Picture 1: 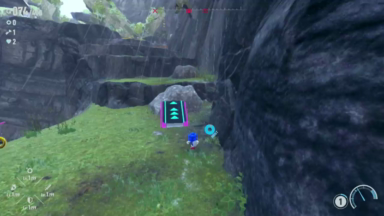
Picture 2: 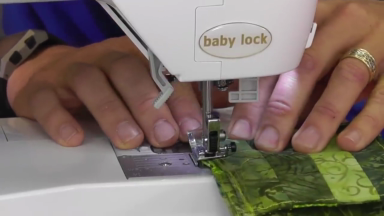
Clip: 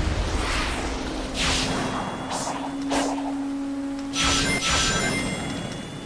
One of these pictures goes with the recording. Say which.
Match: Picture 1